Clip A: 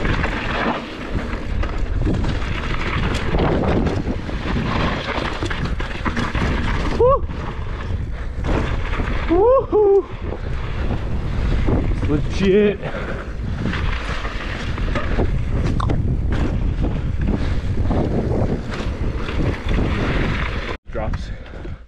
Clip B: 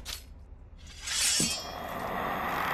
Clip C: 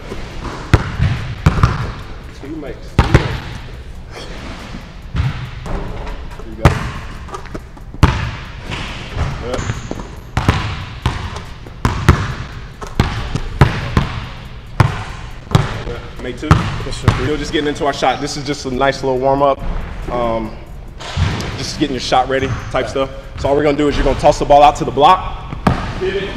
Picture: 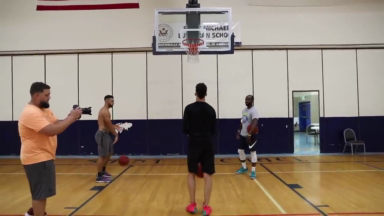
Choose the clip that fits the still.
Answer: C